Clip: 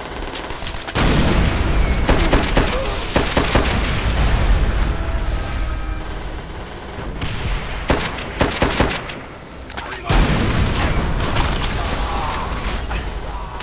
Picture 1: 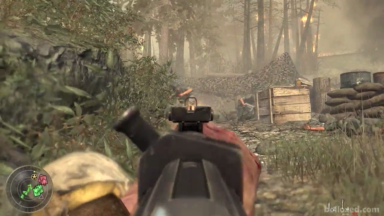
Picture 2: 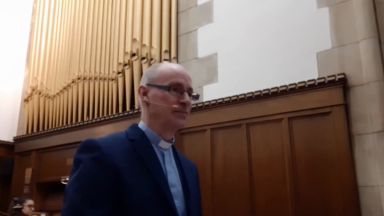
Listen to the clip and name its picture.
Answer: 1